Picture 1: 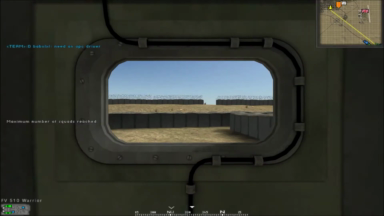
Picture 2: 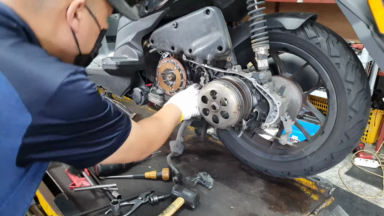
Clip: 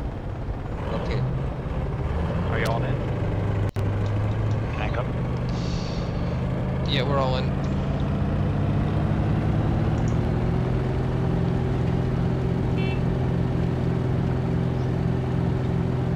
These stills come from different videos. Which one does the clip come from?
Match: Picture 1